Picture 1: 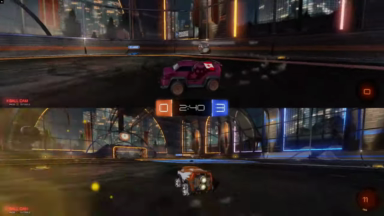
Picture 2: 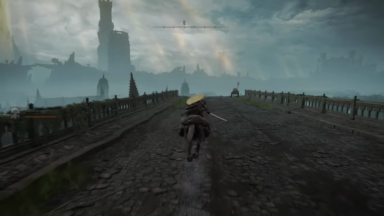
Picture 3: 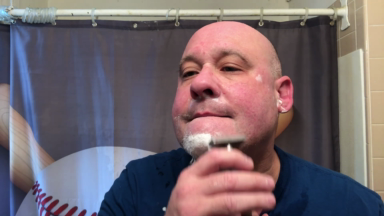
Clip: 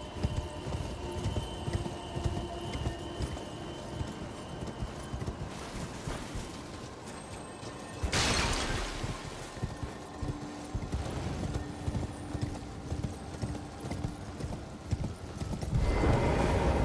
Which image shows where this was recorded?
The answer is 2